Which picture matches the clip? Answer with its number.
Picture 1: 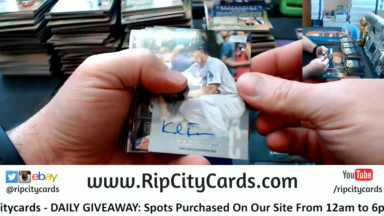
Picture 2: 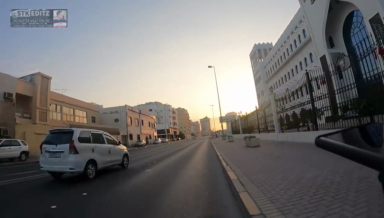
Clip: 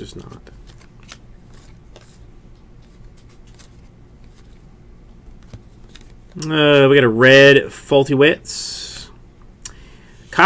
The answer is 1